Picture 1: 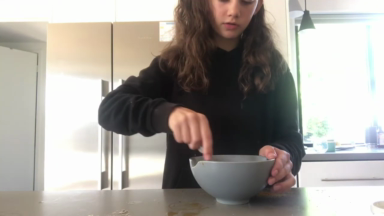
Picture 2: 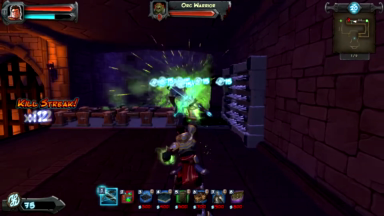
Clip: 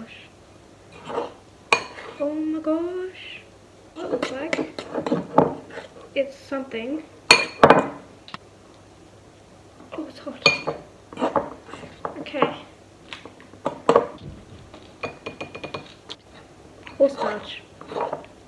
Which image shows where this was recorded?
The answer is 1